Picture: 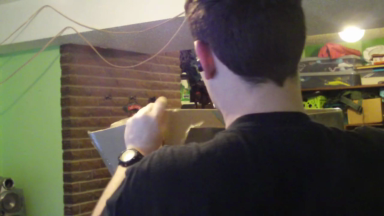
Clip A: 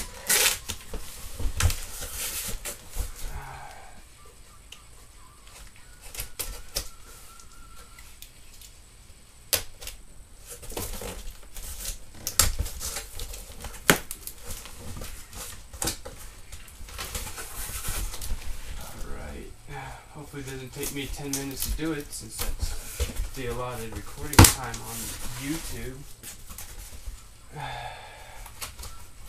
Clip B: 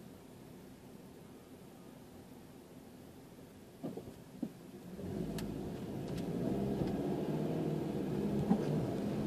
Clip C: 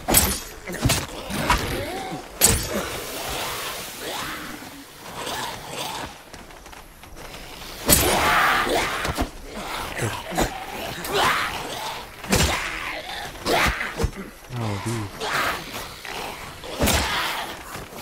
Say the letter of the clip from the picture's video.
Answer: A